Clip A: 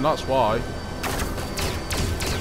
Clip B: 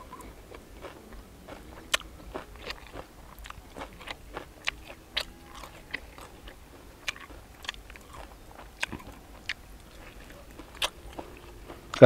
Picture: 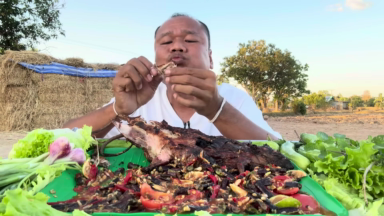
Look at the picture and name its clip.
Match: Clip B